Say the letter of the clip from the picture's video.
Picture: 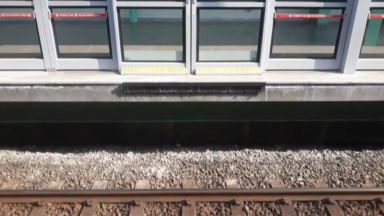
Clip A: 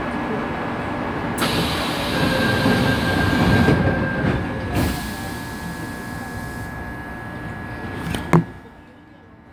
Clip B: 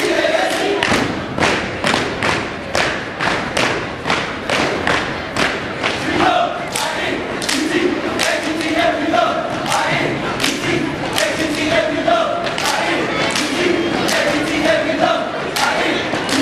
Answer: A